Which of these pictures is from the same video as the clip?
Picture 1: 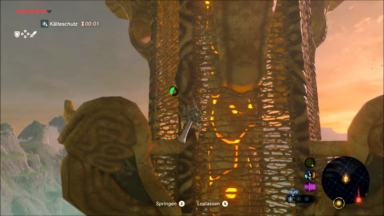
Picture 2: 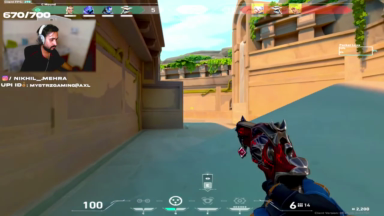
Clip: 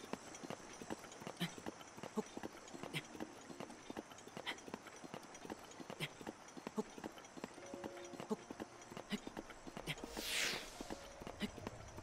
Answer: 1